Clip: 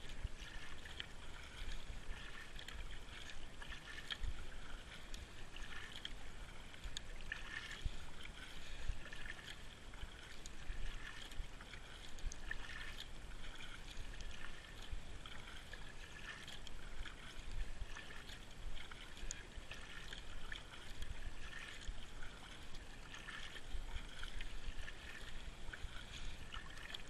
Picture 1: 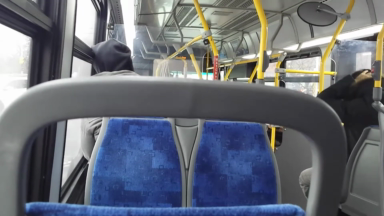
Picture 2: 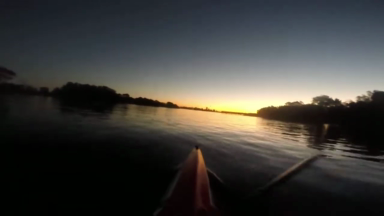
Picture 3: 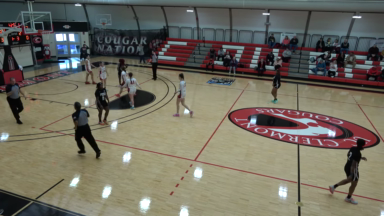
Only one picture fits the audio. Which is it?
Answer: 2